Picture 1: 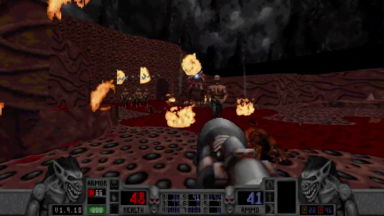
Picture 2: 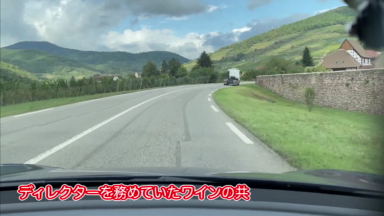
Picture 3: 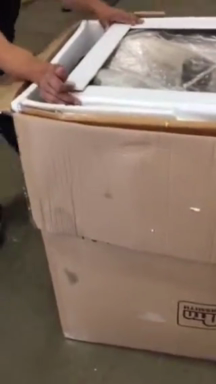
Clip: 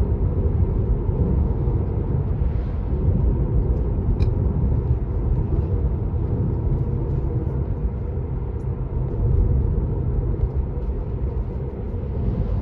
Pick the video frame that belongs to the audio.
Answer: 2